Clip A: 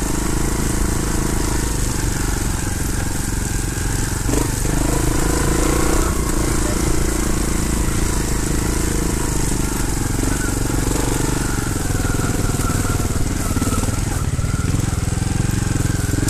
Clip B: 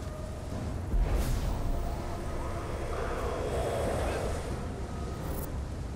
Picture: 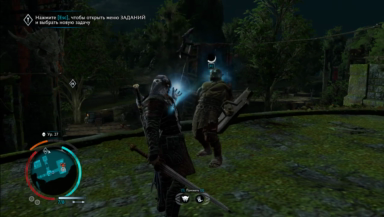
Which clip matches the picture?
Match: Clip B